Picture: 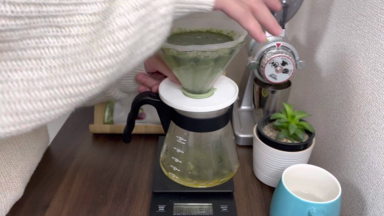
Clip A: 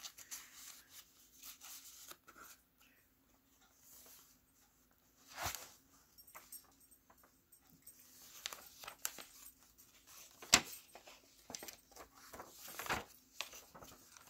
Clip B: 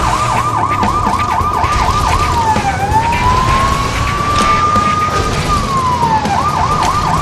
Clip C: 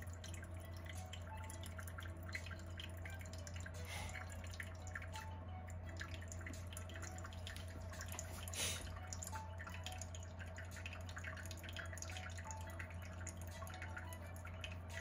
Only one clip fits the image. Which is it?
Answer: C